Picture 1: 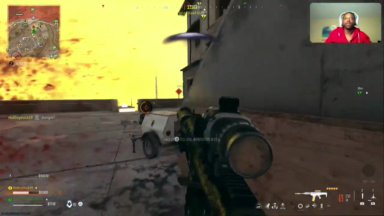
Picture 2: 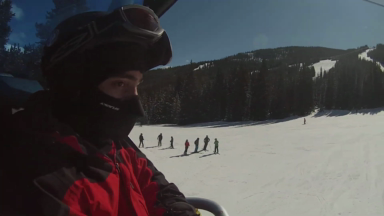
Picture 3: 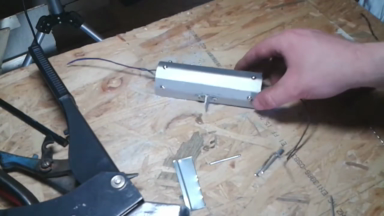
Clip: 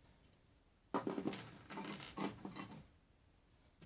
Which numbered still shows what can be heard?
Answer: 3